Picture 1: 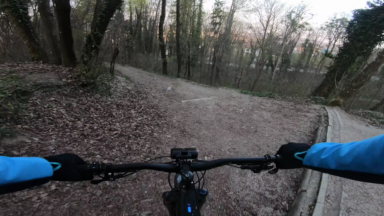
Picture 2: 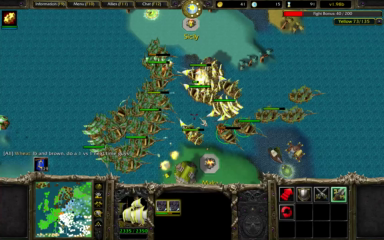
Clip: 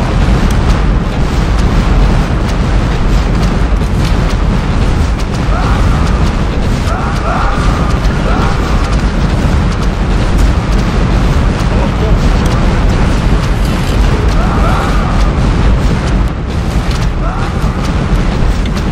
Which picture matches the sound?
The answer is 2